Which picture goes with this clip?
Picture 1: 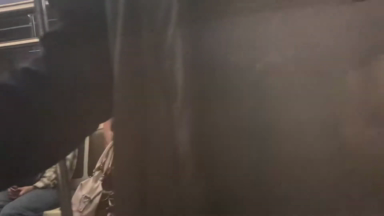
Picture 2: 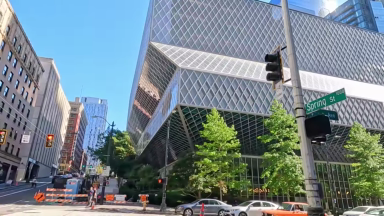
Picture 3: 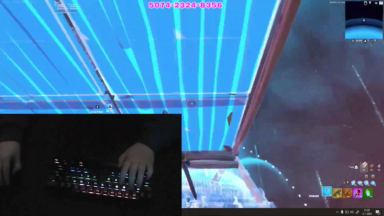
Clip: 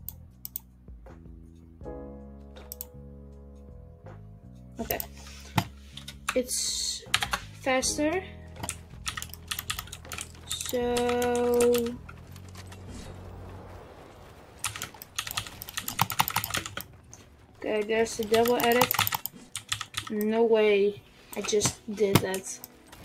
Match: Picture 3